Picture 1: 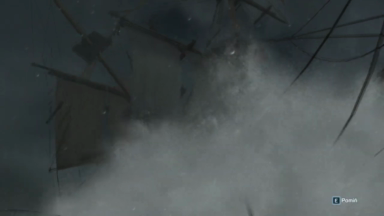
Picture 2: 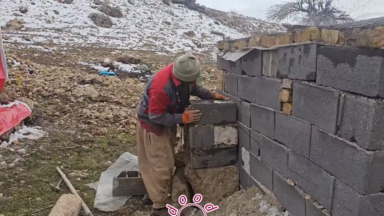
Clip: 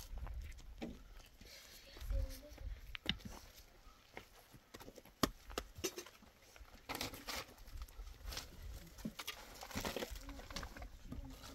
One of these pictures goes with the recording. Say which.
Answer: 2